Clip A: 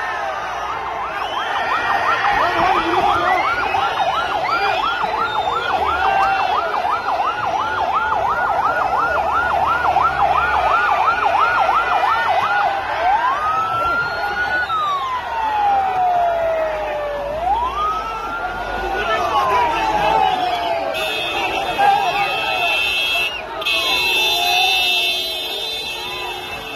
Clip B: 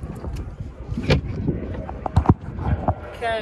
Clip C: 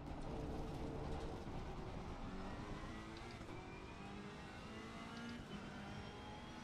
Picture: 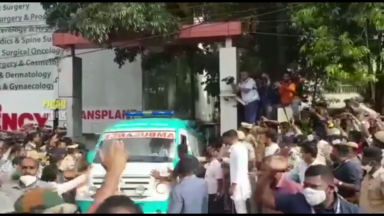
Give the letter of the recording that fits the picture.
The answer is A